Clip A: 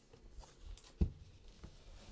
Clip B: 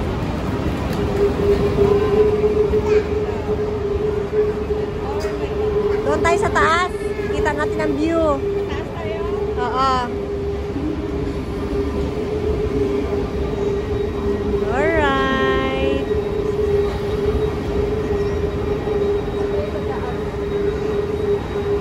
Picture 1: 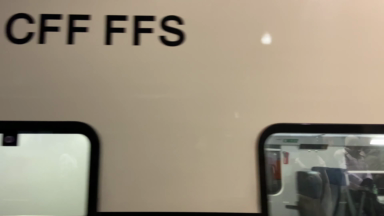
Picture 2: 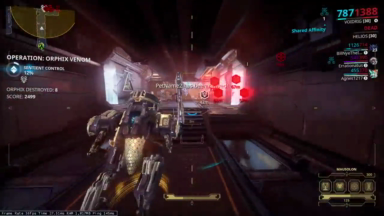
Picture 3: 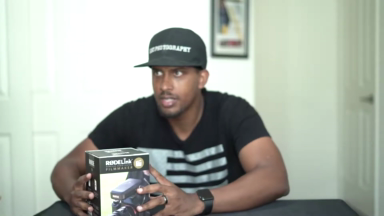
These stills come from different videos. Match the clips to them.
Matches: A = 3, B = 1